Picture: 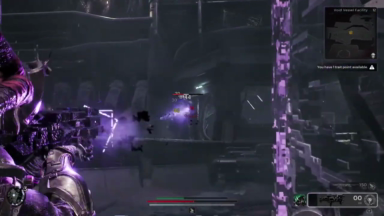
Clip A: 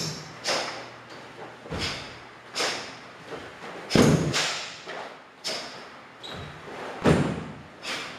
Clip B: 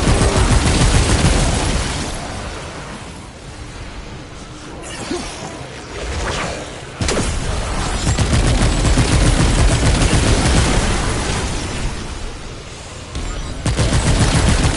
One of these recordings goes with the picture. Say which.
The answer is B